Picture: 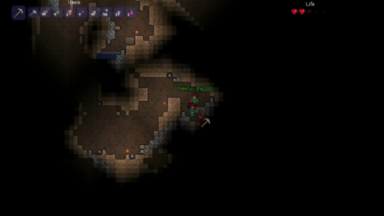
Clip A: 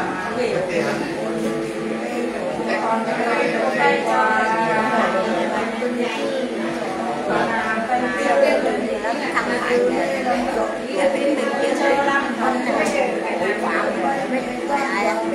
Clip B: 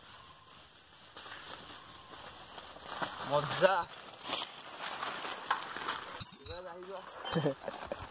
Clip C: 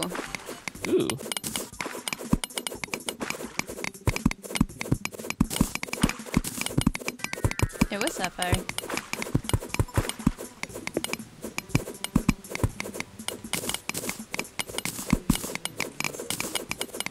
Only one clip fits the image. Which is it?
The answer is C